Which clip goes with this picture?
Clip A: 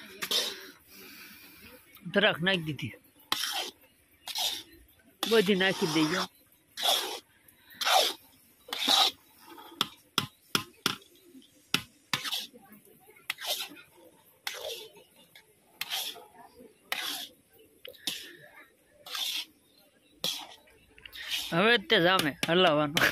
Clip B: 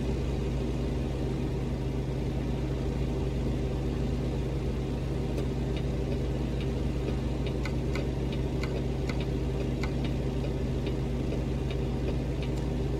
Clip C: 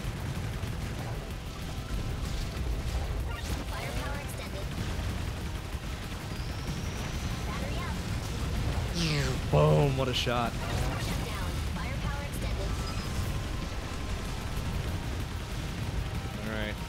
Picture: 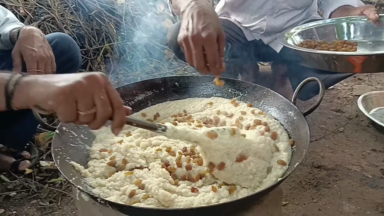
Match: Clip A